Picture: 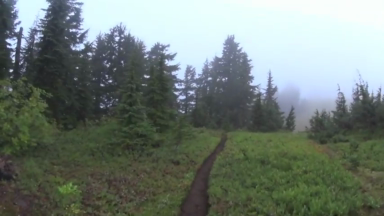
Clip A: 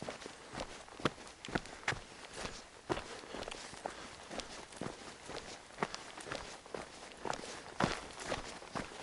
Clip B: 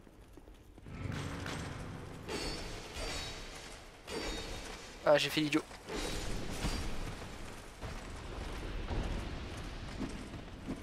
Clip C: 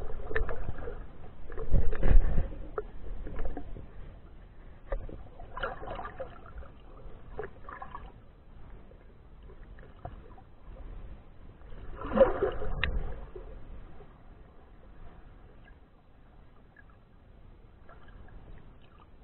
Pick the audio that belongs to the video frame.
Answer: A